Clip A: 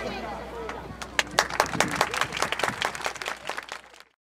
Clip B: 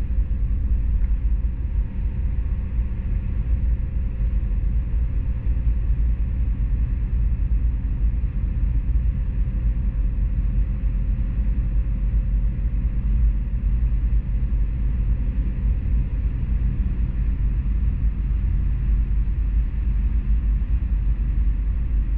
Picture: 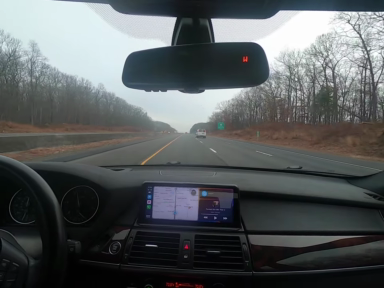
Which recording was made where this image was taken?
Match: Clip B